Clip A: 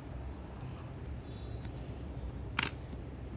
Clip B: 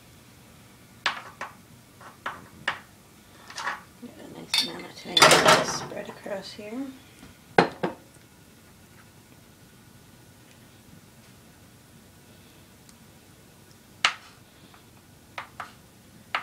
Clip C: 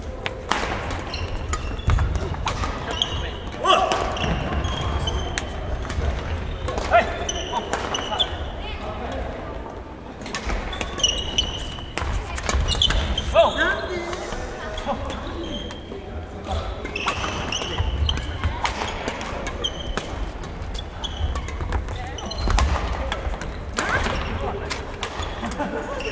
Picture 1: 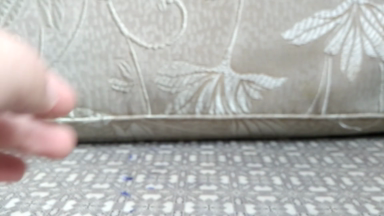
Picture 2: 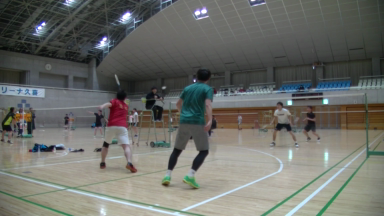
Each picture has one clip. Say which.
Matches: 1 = A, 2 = C